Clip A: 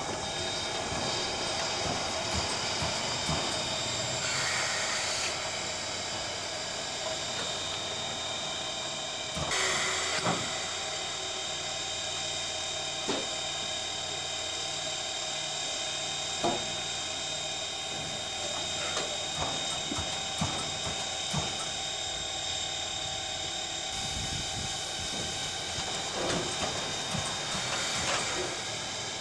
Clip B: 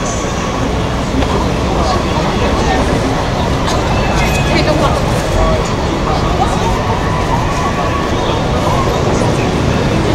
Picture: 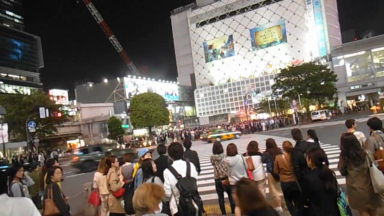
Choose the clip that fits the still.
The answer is B